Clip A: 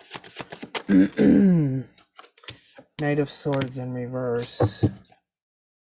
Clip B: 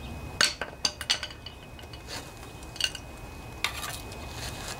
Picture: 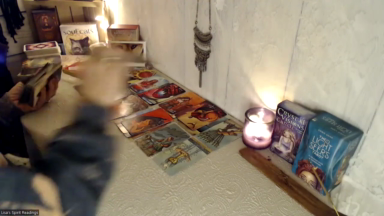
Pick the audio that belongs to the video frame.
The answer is A